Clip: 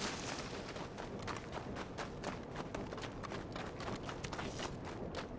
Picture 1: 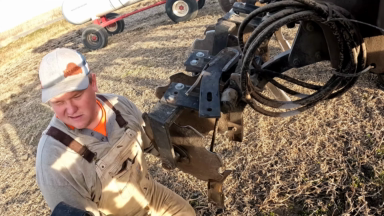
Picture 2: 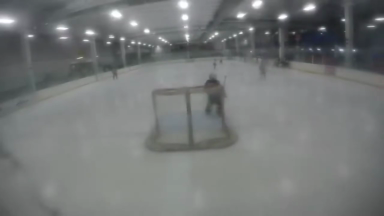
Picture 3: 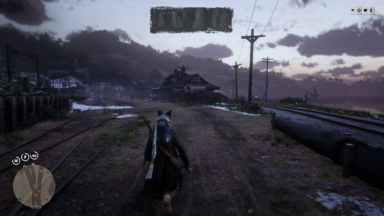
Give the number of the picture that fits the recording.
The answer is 3